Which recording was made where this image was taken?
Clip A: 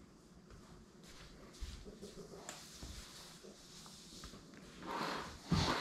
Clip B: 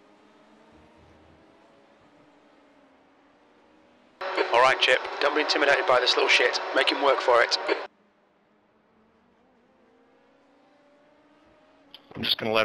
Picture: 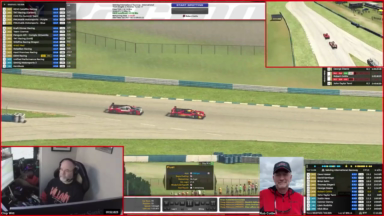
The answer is B